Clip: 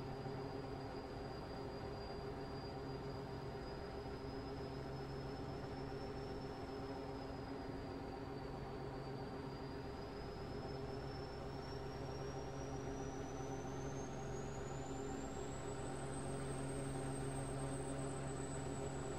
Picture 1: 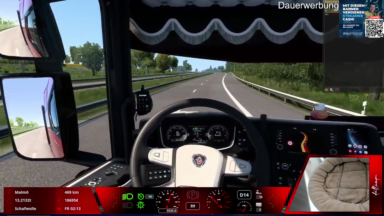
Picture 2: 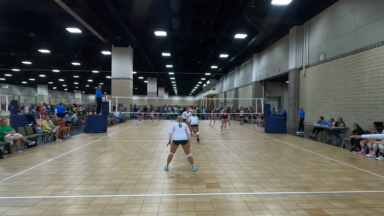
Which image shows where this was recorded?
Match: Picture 1